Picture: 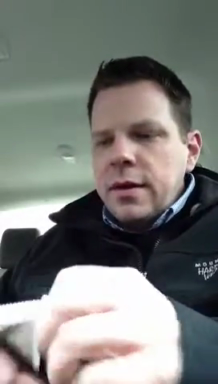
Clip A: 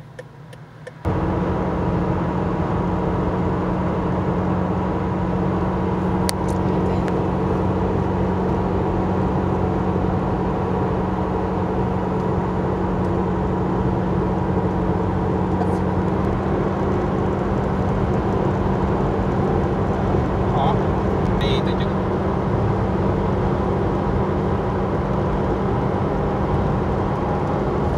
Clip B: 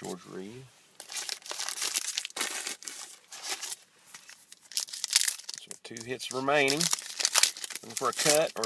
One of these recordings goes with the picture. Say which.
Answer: B